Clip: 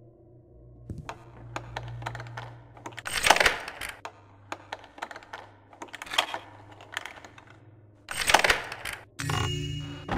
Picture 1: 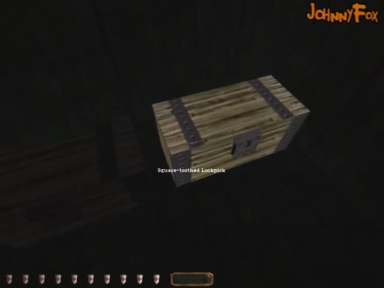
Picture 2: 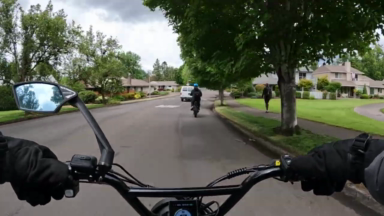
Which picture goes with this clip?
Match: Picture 1